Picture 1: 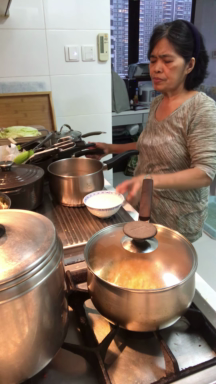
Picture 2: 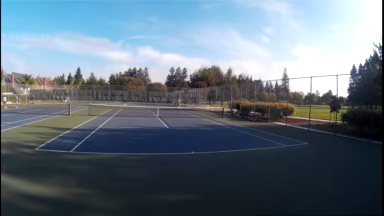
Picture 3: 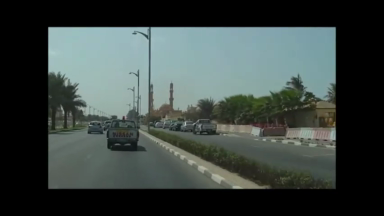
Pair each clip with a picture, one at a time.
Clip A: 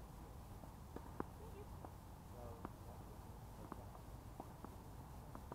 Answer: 2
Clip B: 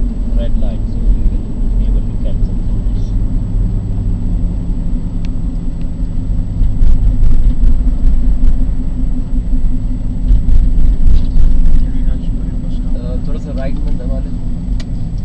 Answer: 3